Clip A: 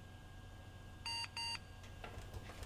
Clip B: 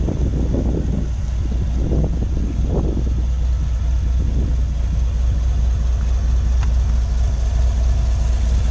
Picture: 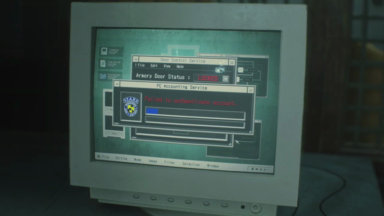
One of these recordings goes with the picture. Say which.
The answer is A